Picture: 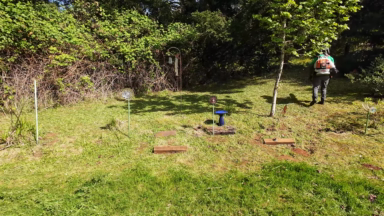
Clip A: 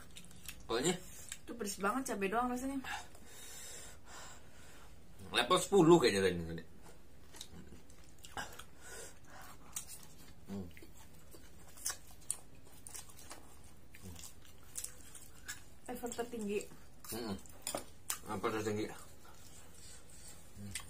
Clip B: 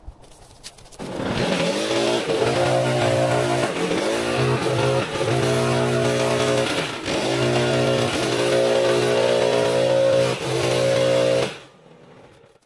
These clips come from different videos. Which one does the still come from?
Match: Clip B